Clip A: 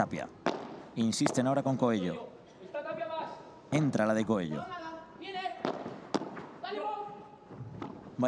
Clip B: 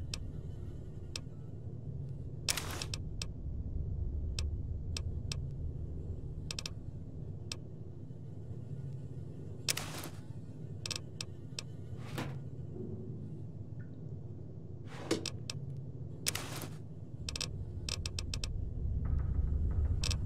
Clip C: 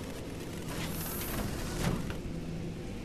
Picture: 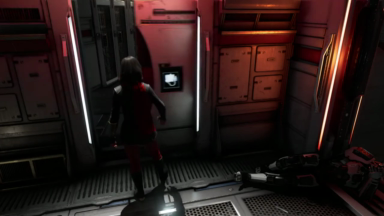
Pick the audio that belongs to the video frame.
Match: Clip C